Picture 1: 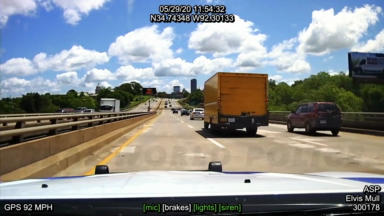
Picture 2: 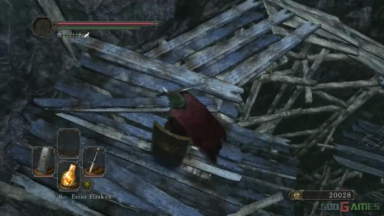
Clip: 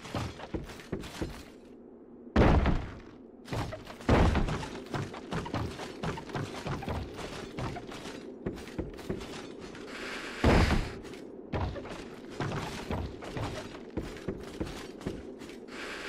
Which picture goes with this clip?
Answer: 2